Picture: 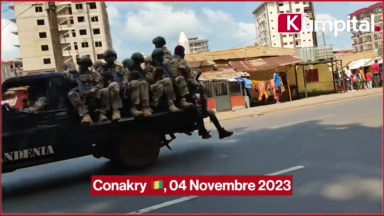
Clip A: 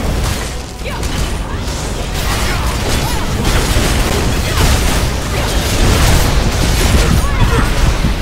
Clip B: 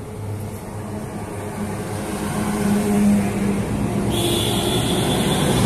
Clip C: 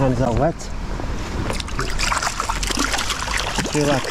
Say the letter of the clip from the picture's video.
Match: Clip B